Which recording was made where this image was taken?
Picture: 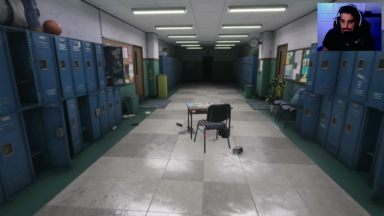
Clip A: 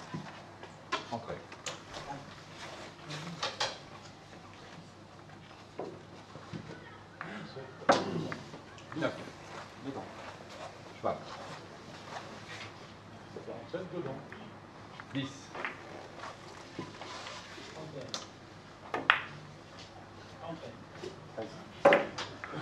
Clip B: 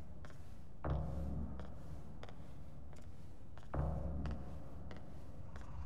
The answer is B